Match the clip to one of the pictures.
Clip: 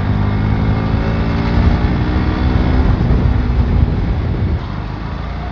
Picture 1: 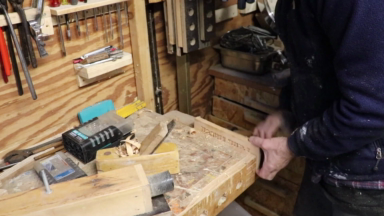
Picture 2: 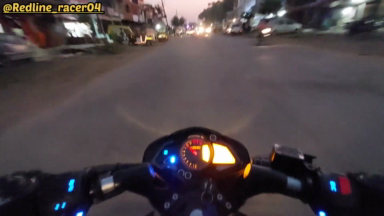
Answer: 2